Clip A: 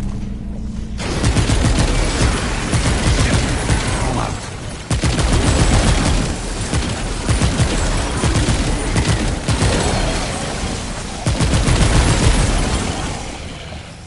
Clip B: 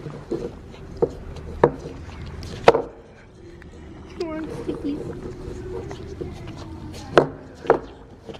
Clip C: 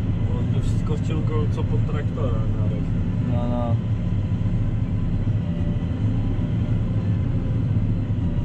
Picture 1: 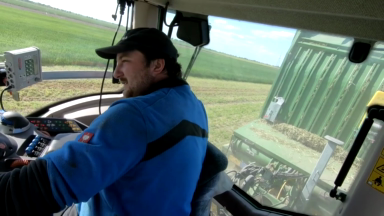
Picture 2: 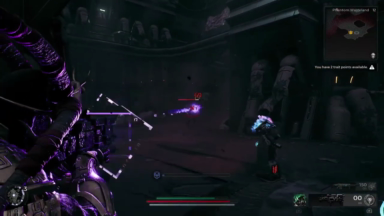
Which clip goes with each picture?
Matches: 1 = C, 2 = A